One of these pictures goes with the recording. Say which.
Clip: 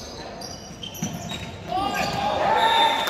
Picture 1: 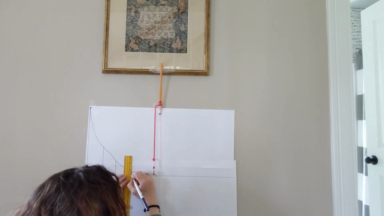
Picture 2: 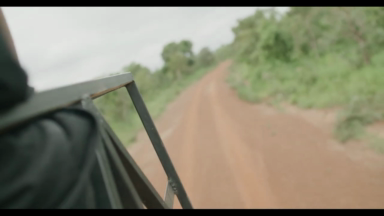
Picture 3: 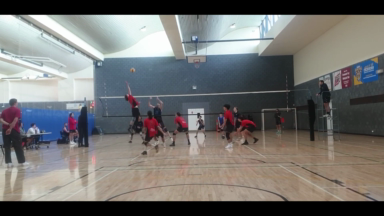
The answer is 3